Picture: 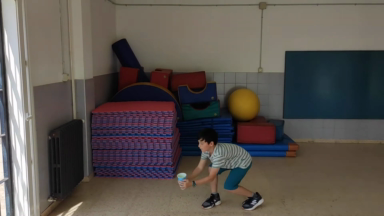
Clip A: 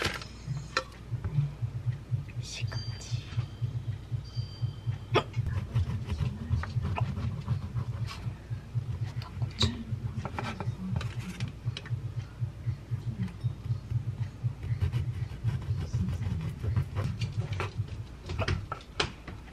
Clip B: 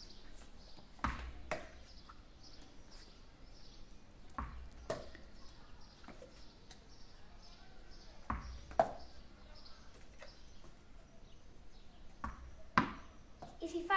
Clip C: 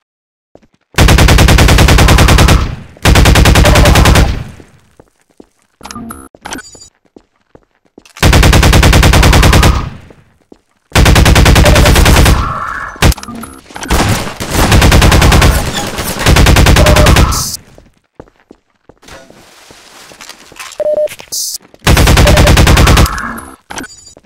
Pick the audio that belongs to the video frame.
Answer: B